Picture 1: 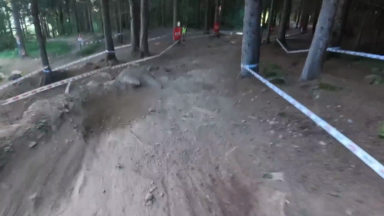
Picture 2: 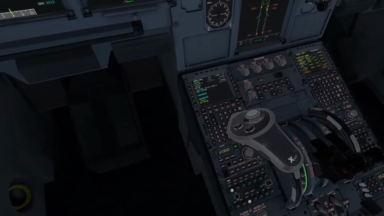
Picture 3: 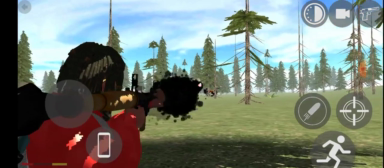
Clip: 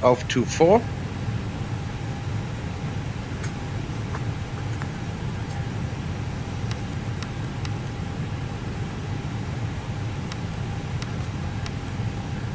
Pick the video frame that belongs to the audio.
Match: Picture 2